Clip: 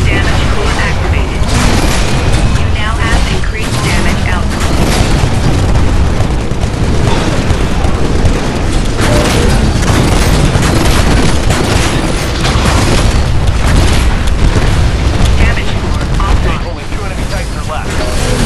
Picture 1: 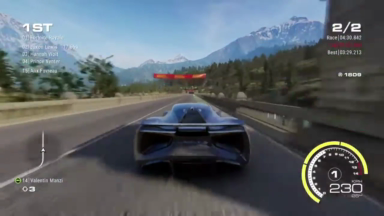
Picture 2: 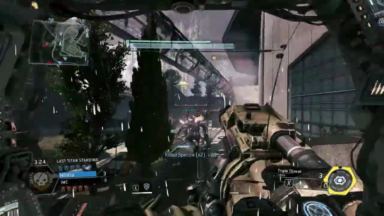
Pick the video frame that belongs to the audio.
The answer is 2